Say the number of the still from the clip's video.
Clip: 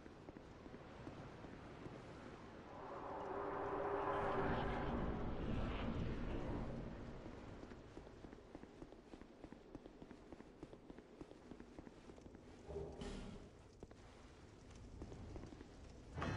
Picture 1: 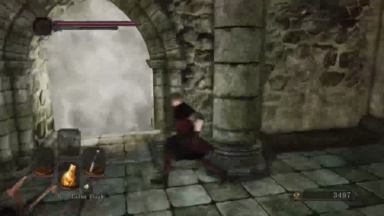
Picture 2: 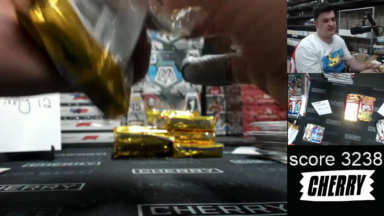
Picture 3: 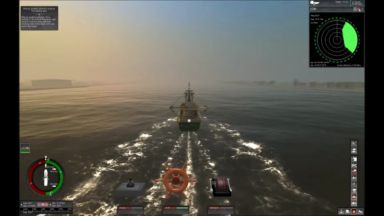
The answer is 1